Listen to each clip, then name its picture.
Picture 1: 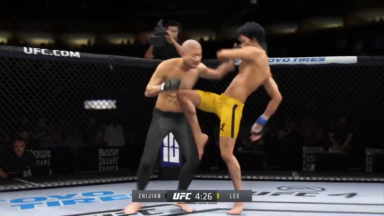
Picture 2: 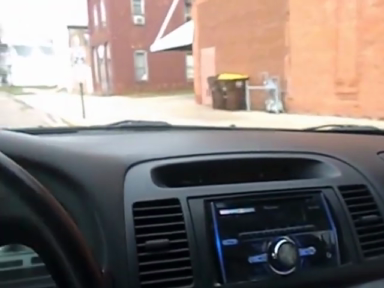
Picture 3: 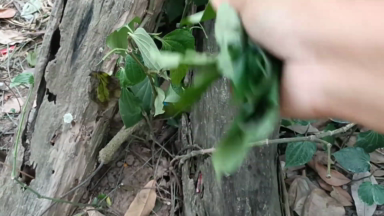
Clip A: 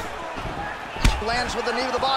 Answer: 1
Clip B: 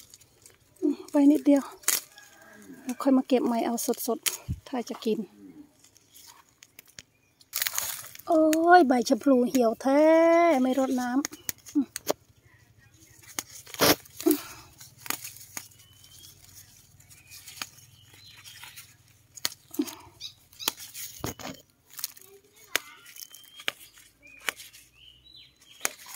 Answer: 3